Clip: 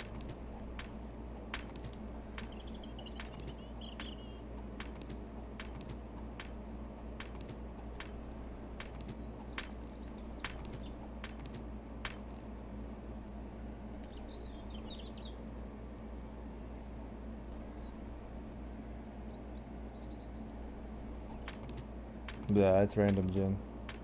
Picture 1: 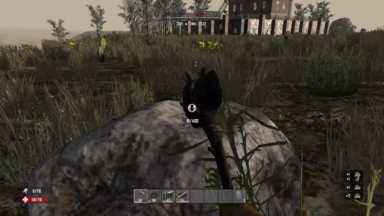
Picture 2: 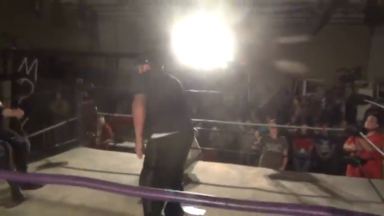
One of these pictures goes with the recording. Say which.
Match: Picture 1